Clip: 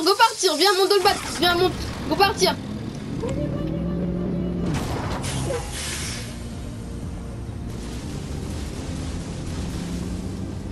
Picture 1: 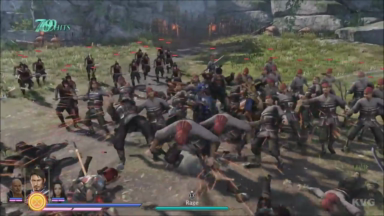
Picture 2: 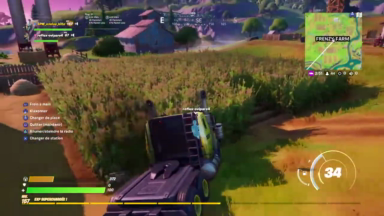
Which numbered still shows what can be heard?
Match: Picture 2